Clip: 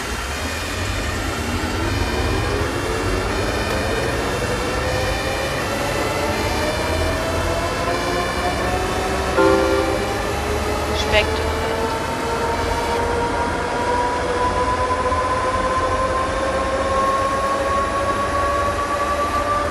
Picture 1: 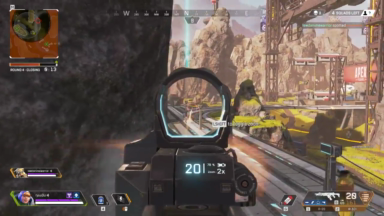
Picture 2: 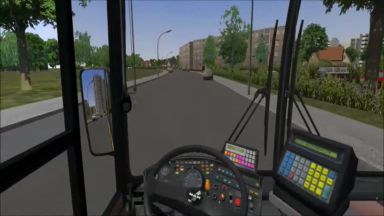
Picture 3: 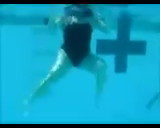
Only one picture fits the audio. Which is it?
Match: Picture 2